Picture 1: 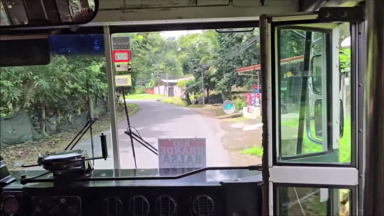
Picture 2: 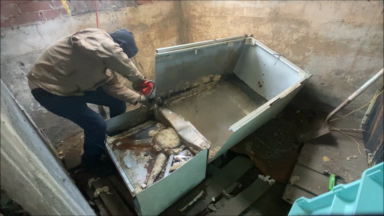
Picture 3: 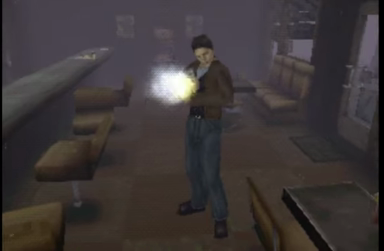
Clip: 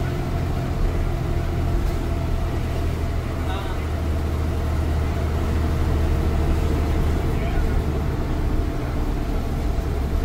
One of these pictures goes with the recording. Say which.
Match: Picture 1